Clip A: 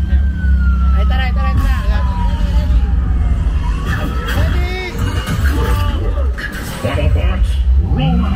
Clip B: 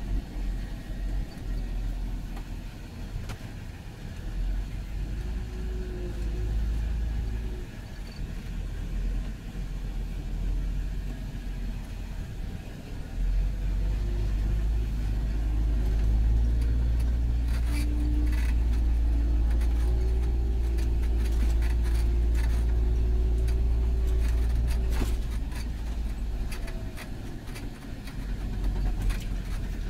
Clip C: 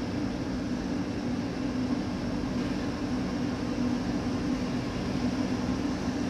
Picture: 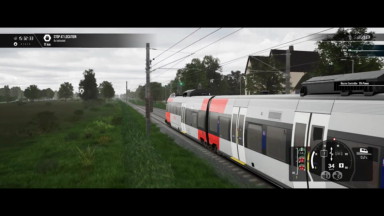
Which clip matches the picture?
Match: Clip C